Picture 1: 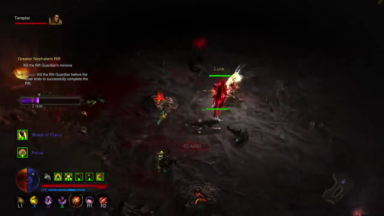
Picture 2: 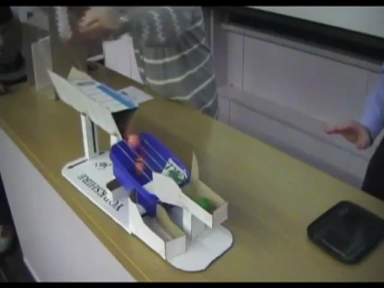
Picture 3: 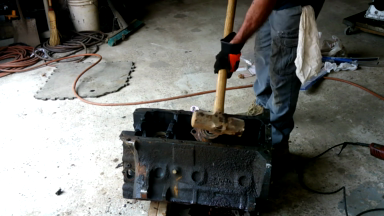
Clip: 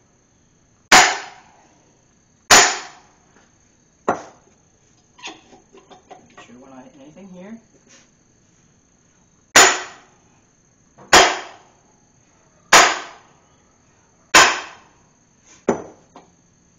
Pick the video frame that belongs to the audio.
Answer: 3